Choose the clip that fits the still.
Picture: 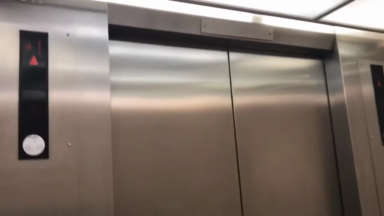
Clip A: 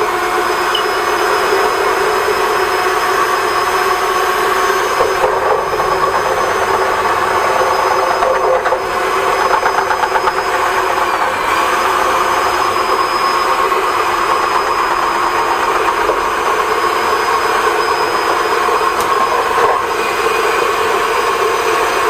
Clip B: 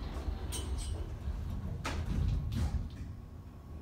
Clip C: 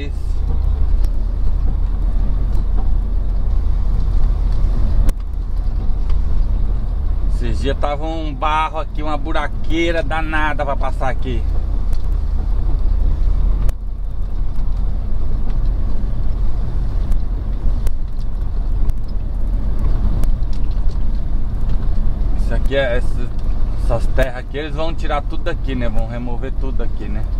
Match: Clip B